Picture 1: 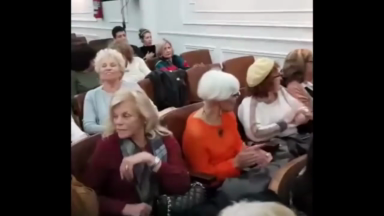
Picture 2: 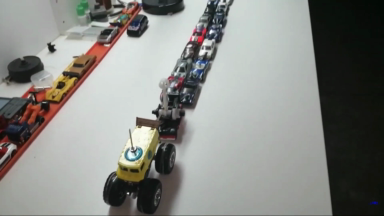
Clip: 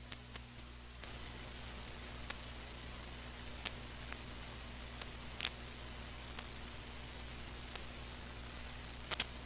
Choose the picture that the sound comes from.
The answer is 2